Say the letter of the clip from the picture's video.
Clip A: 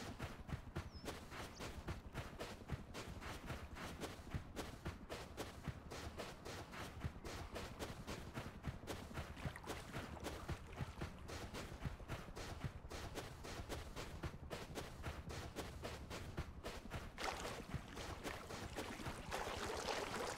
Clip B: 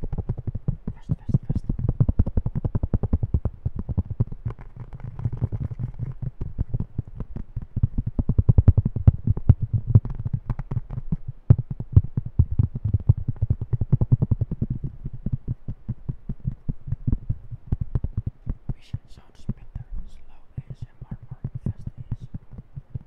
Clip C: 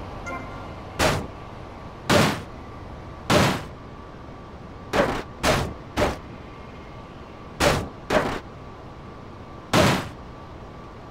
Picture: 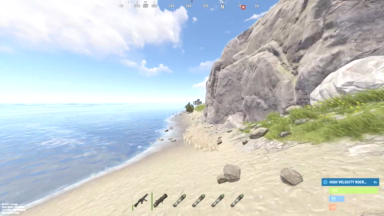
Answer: A